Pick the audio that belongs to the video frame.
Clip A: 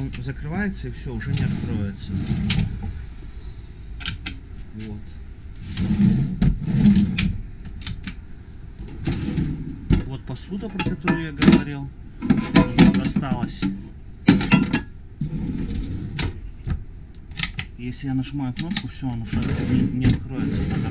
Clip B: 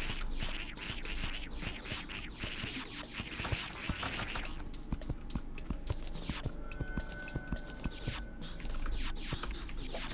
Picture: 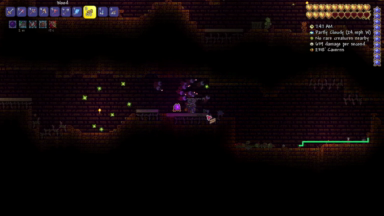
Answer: B